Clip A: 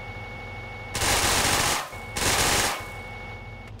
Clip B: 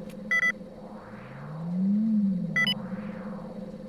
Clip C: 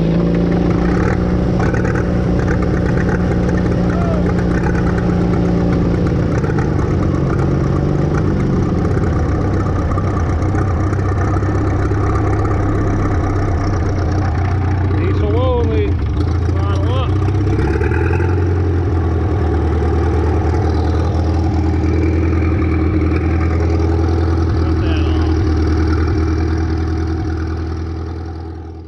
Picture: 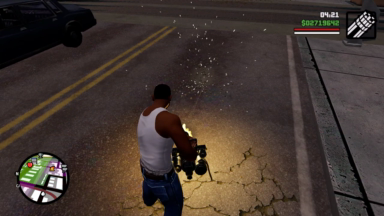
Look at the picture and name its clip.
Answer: A